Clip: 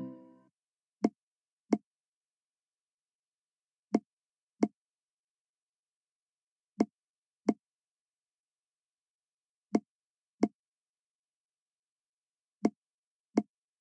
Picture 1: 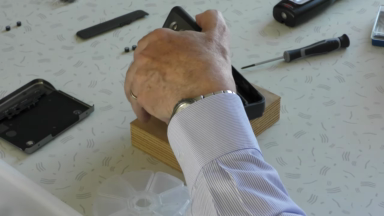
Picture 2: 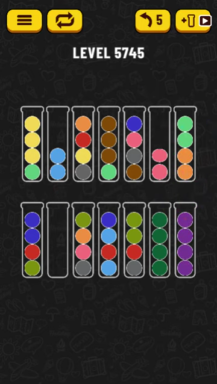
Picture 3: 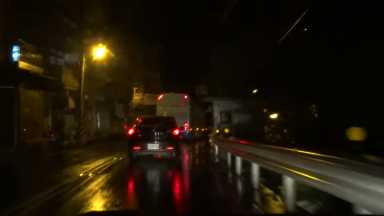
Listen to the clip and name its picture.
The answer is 2